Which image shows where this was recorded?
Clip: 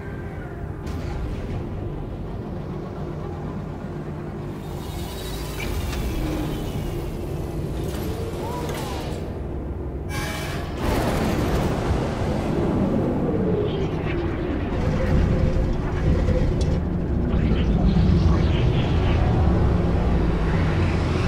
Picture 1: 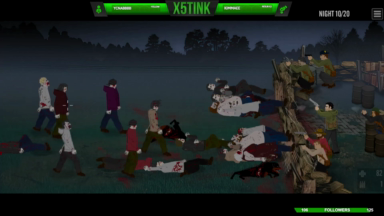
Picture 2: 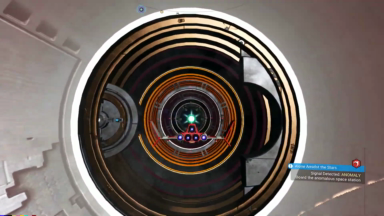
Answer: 2